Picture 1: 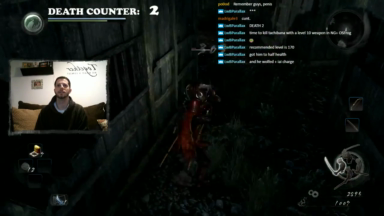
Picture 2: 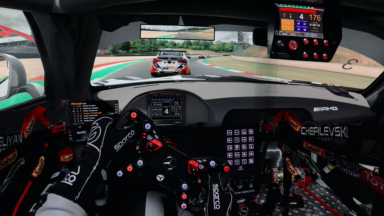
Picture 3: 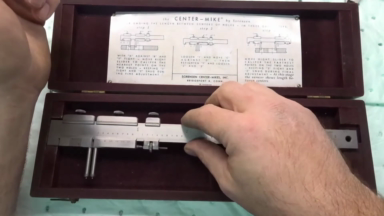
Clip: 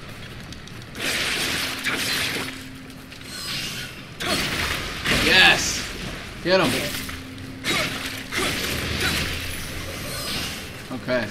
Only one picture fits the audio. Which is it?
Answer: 1